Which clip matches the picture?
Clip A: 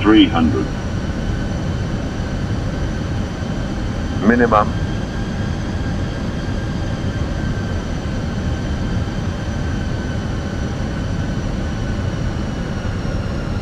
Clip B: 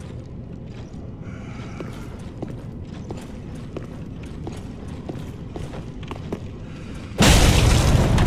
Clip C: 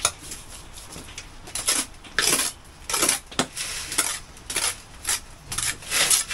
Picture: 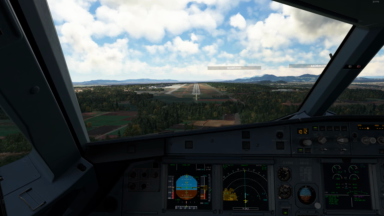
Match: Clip A